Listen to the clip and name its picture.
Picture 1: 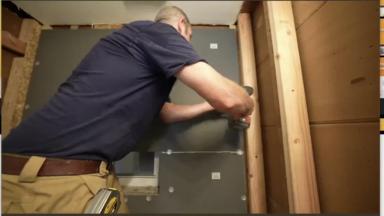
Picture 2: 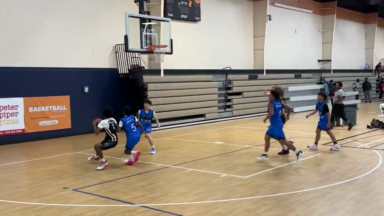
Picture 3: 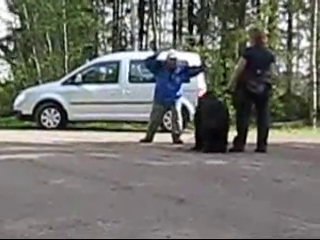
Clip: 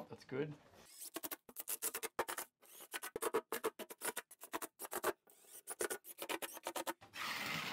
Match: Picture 1